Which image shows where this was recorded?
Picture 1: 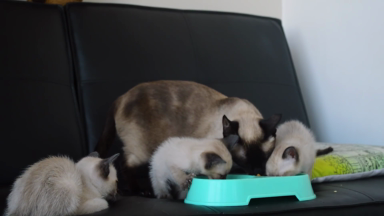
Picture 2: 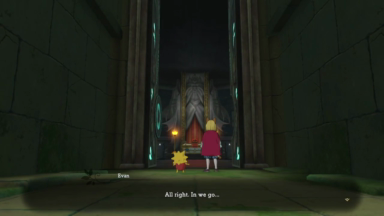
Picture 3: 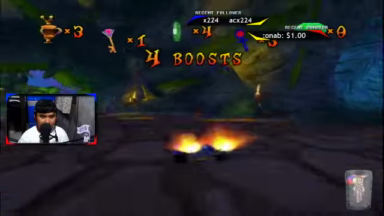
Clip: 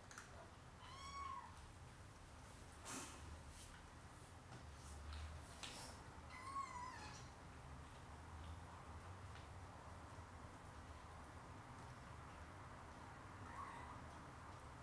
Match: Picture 1